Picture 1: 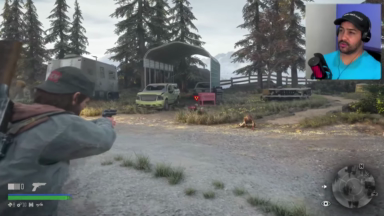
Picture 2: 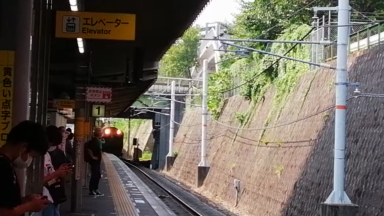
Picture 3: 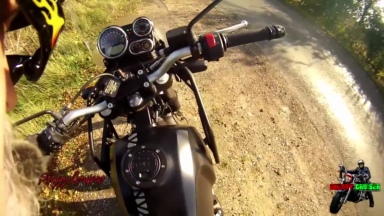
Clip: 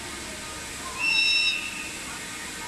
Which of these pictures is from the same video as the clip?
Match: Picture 2